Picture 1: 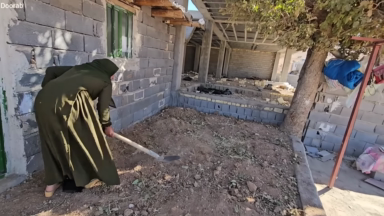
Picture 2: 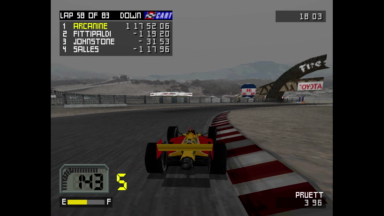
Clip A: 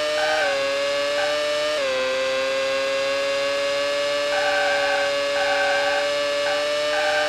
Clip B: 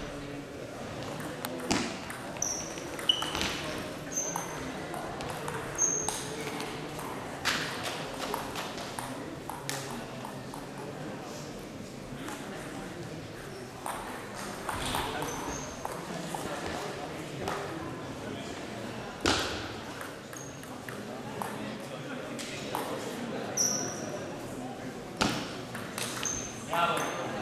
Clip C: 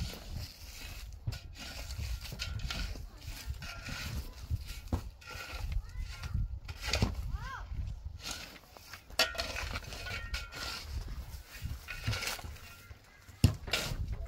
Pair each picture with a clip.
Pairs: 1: C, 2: A